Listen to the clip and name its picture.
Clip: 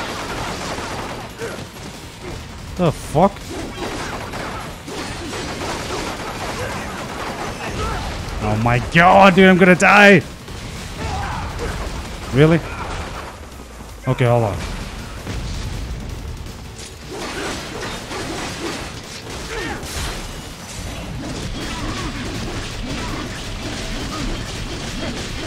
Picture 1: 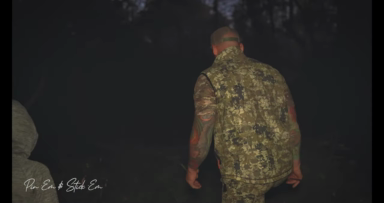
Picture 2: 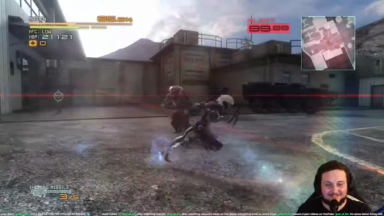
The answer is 2